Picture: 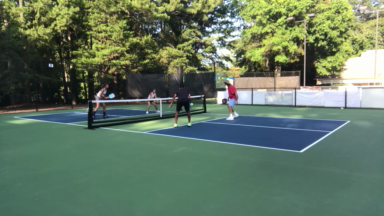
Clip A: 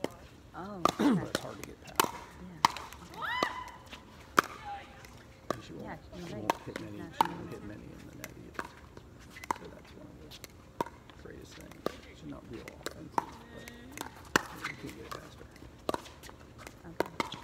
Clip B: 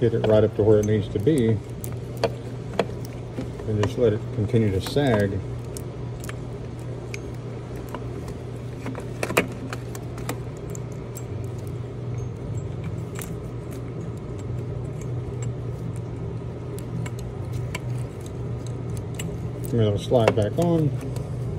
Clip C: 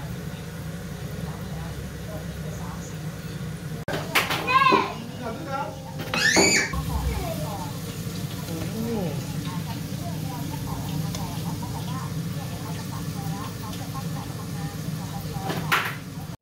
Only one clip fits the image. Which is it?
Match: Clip A